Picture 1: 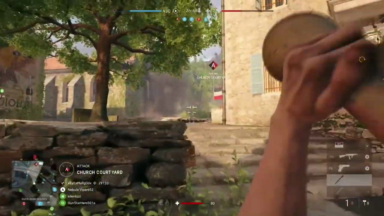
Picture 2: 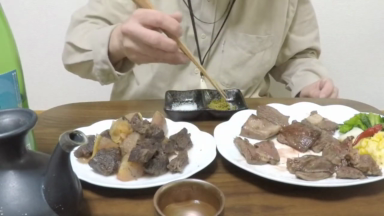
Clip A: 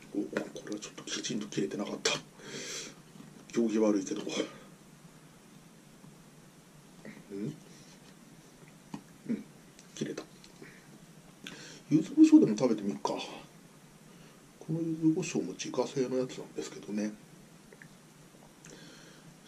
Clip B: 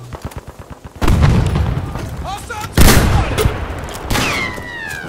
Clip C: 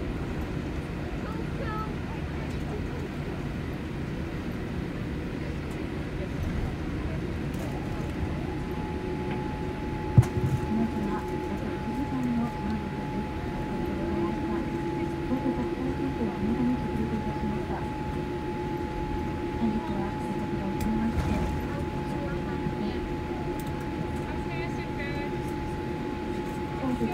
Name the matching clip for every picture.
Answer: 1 B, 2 A